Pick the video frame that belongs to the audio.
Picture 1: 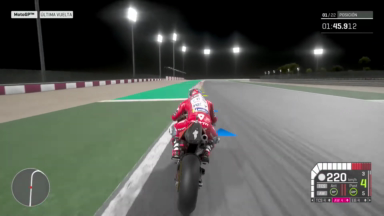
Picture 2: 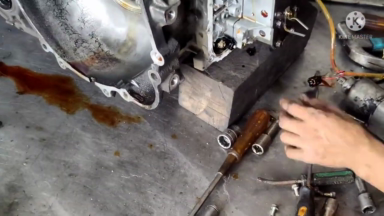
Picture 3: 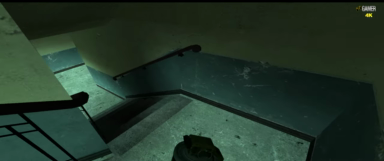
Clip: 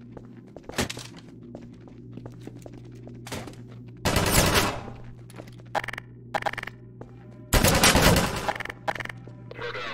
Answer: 3